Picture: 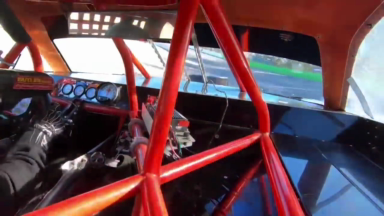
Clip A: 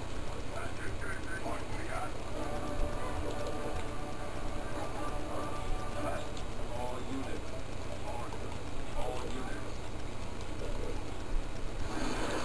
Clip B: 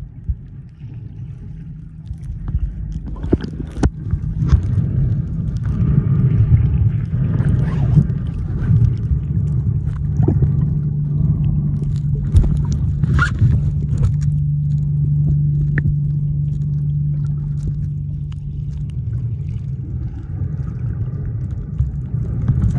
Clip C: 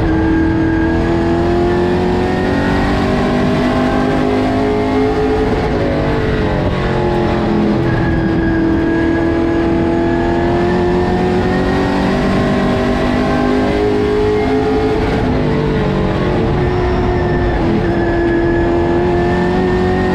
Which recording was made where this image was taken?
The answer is C